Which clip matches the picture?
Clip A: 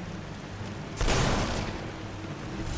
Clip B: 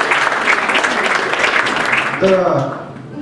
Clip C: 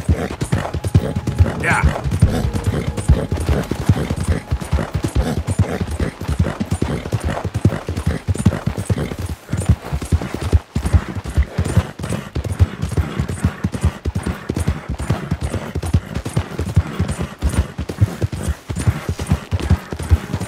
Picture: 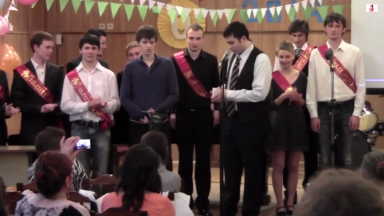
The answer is B